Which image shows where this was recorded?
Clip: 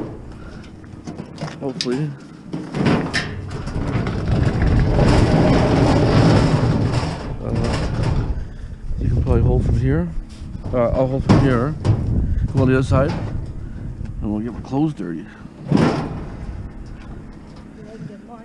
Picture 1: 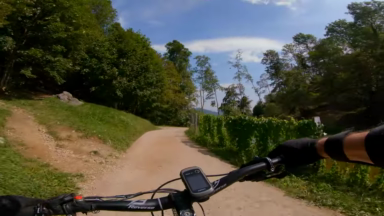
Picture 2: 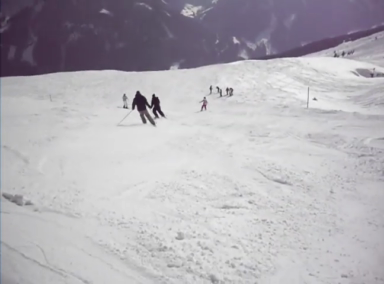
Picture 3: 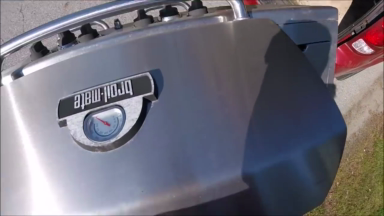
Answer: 3